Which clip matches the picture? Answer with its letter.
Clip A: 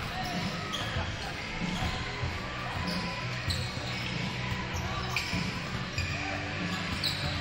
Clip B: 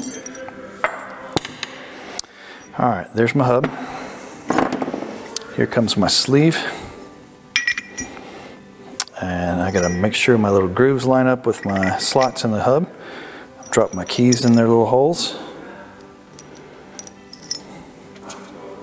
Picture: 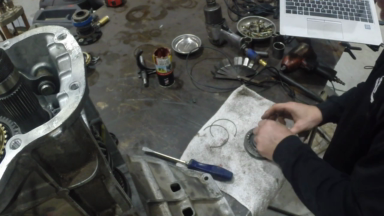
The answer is B